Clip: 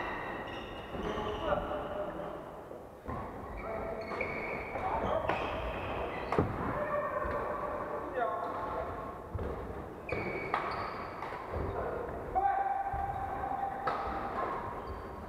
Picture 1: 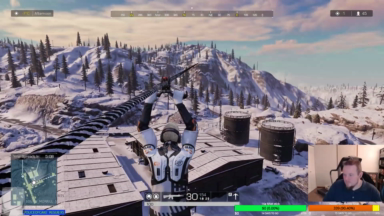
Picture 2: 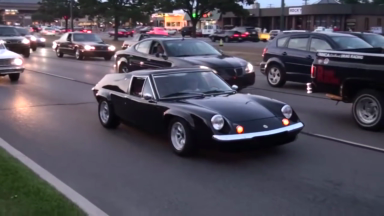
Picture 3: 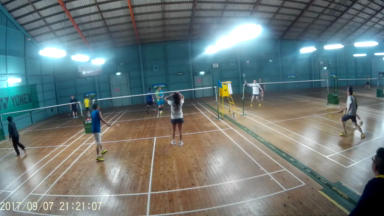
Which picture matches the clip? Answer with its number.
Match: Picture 3